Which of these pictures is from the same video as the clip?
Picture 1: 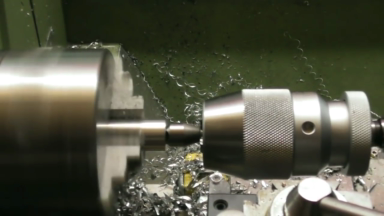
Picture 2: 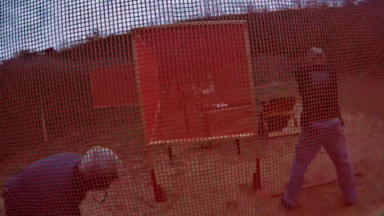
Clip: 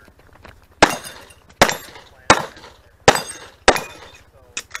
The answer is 2